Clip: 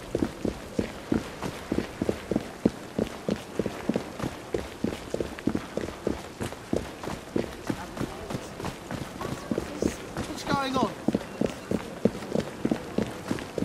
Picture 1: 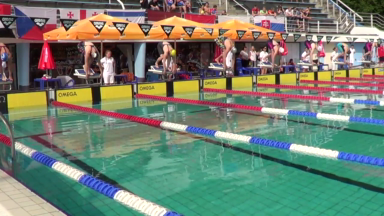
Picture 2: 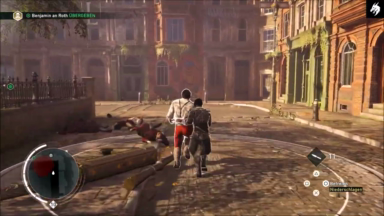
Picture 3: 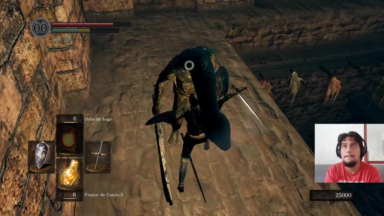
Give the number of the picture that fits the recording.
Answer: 2